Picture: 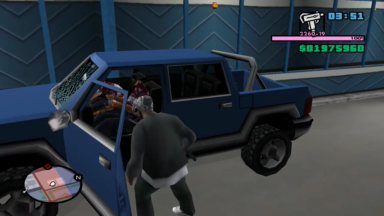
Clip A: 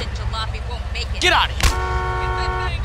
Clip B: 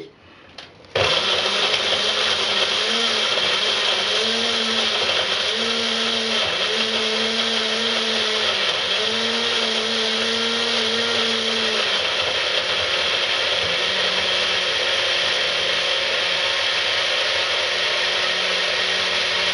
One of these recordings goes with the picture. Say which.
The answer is A